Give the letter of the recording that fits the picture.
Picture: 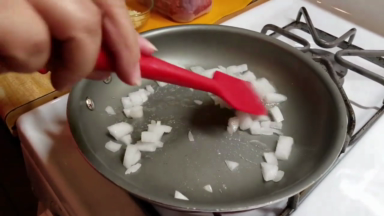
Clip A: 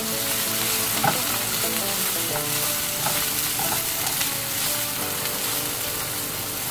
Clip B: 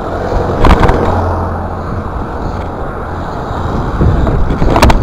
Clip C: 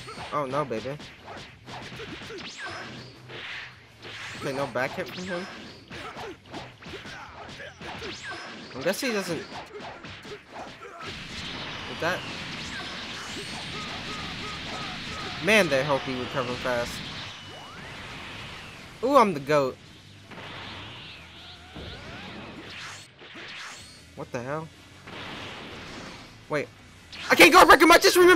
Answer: A